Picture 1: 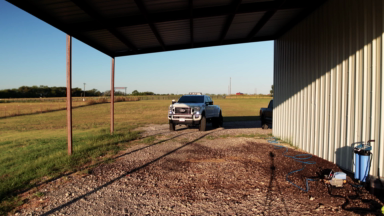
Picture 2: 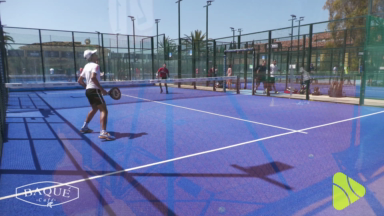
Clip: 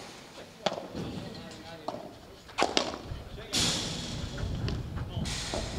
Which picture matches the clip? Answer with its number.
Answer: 2